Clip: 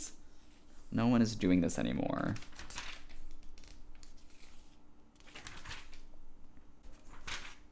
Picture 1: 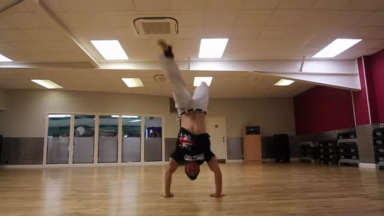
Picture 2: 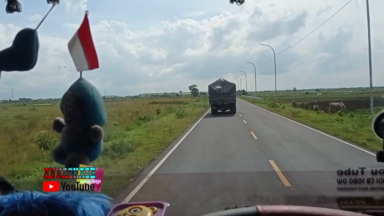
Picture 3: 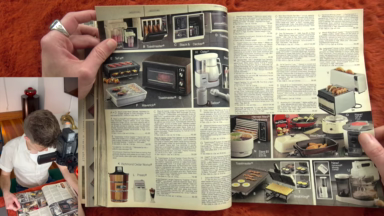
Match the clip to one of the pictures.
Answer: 3